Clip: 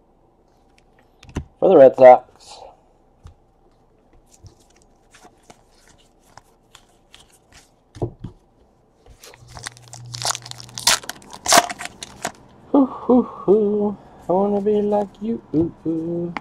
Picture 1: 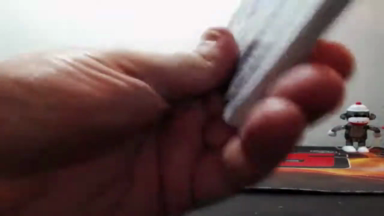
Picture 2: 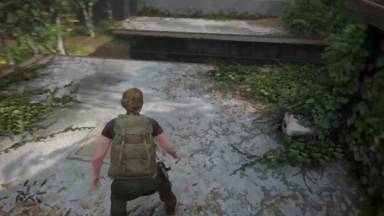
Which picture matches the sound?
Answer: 1